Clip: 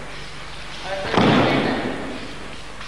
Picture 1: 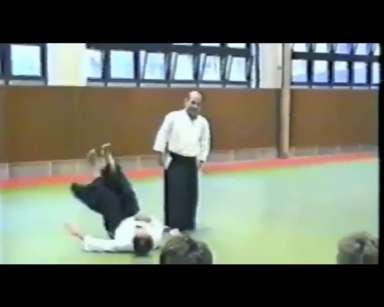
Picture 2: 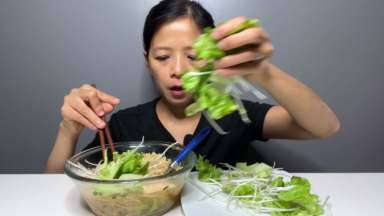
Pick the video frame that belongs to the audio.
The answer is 1